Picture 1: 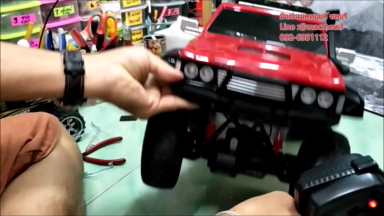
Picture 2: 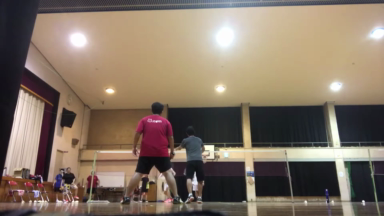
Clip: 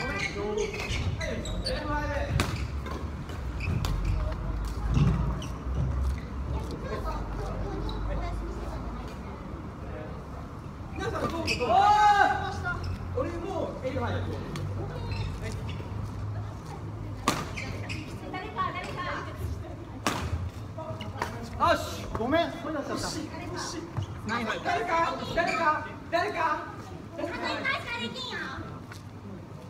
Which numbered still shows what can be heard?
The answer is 2